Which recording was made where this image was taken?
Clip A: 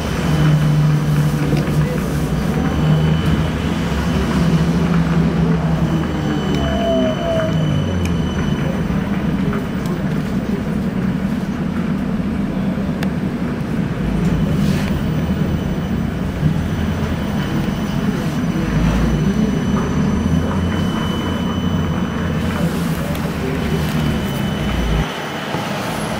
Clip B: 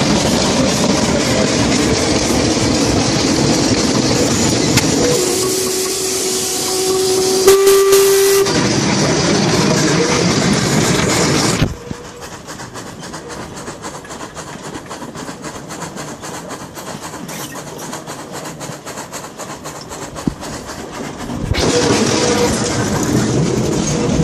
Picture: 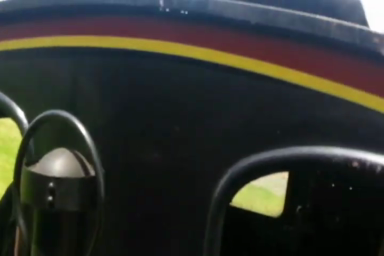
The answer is B